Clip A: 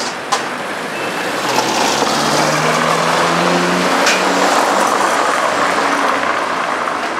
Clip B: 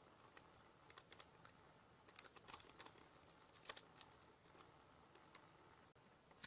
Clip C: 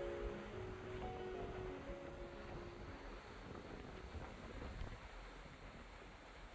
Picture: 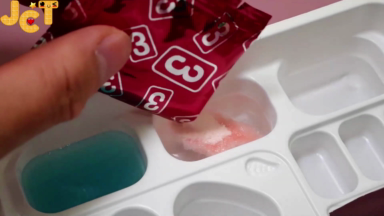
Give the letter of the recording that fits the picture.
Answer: B